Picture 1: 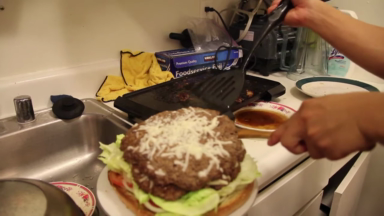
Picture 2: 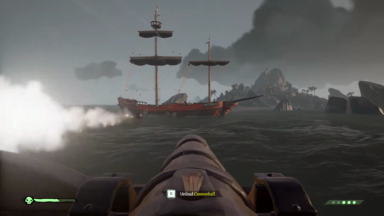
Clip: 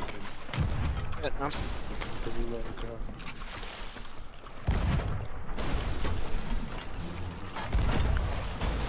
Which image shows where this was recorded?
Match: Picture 2